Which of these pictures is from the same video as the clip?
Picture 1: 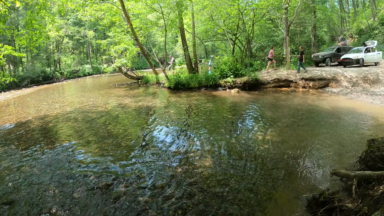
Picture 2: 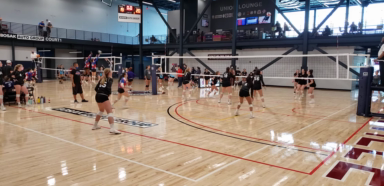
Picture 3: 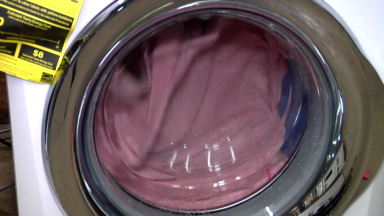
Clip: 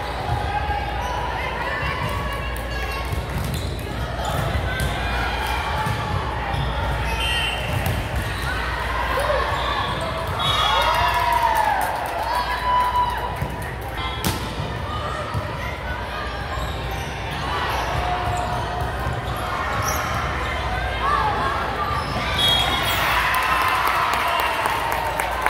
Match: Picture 2